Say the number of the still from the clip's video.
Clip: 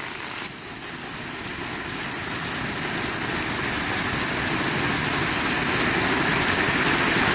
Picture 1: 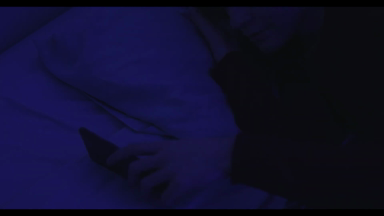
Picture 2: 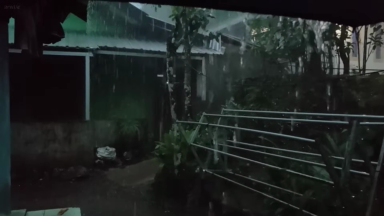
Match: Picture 2